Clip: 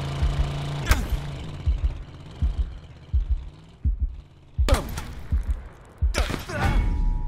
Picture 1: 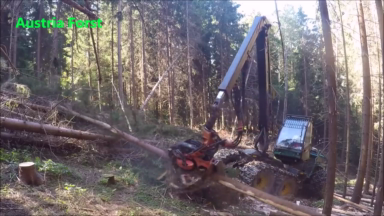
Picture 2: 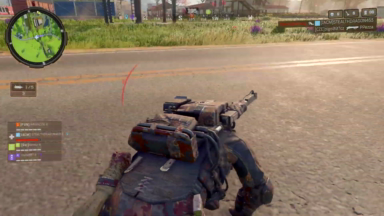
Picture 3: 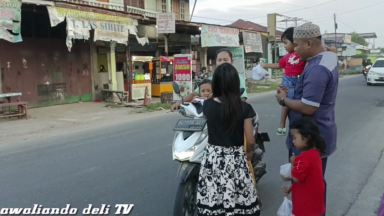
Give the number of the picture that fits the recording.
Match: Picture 2